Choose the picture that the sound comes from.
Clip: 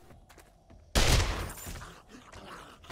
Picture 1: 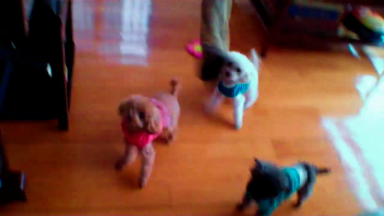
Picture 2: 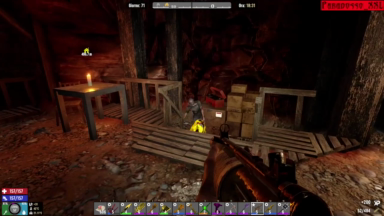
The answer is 2